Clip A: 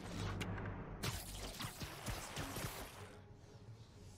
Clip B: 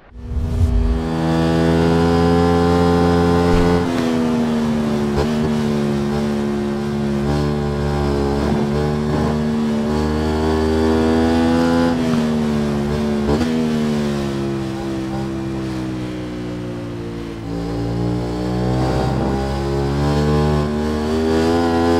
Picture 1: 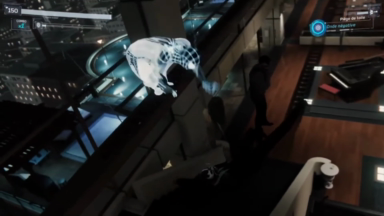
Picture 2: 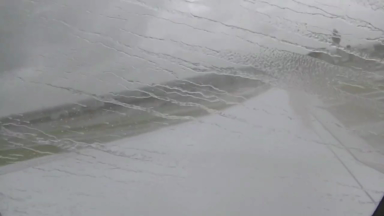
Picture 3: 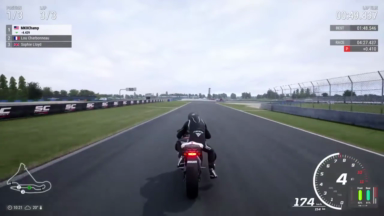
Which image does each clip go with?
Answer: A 1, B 3